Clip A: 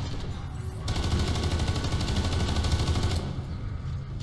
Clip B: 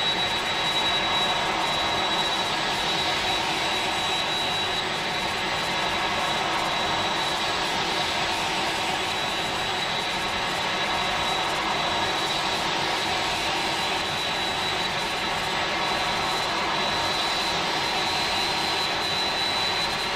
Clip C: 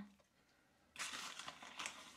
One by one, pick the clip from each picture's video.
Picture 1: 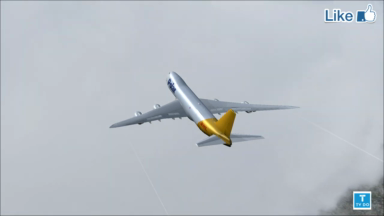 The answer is B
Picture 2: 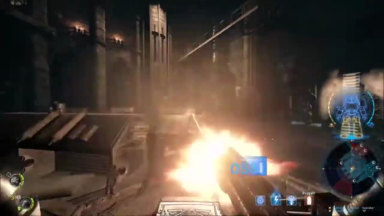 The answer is A